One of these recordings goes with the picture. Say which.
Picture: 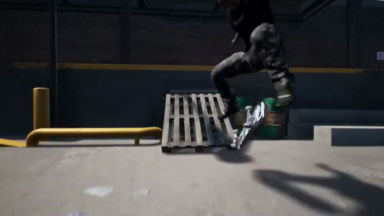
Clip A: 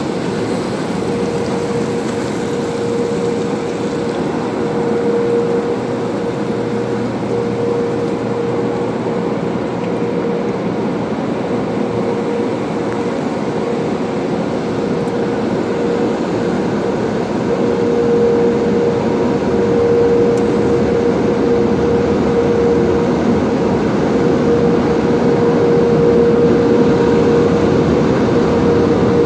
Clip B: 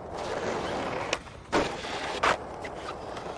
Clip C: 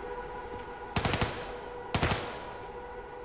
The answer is B